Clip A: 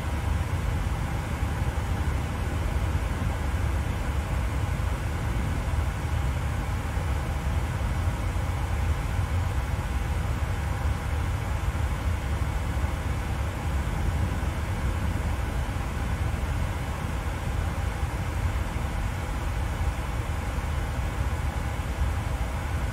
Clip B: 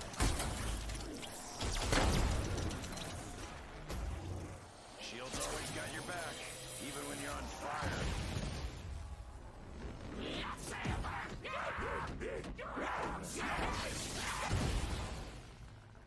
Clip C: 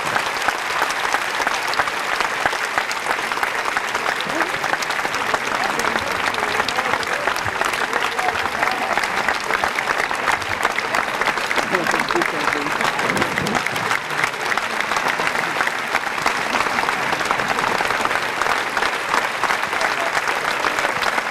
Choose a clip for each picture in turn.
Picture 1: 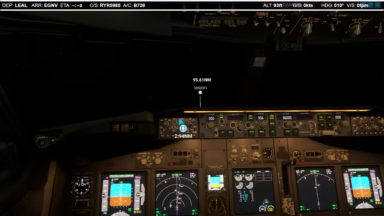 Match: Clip A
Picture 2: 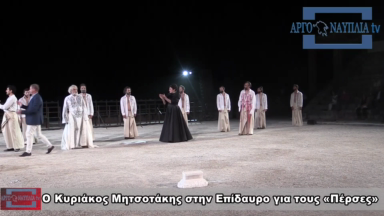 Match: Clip C